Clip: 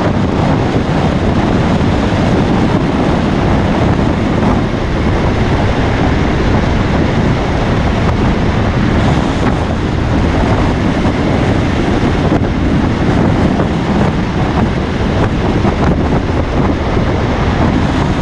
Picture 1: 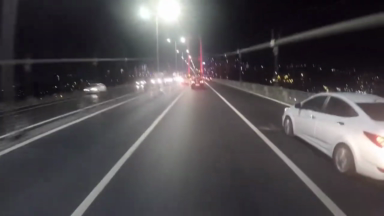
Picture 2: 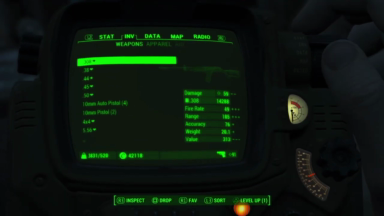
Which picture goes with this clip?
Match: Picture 1